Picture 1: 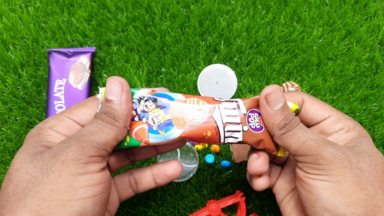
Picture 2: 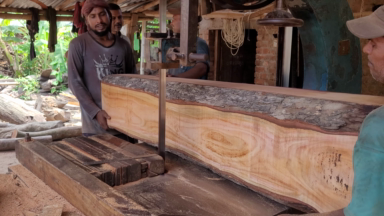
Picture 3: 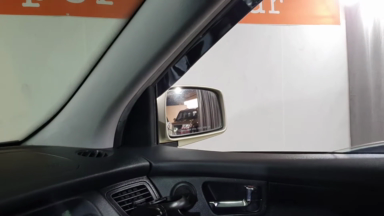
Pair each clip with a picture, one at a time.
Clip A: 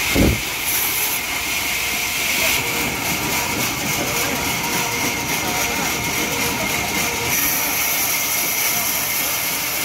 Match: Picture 2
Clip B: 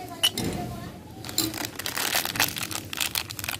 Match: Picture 1